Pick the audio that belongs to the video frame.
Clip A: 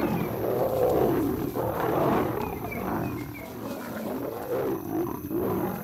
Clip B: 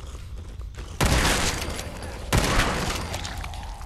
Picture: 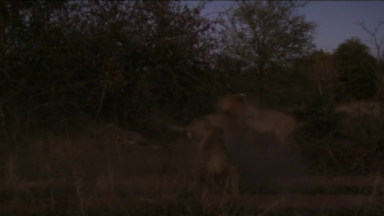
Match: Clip A